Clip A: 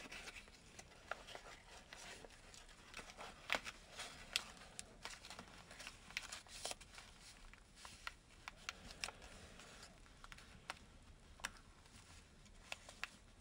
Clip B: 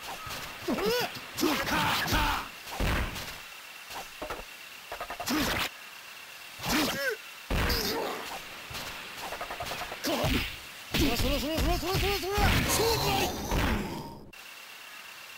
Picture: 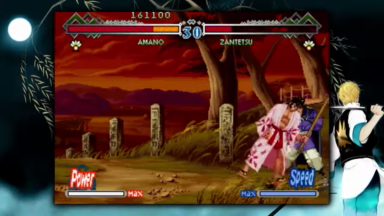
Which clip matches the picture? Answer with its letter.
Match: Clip B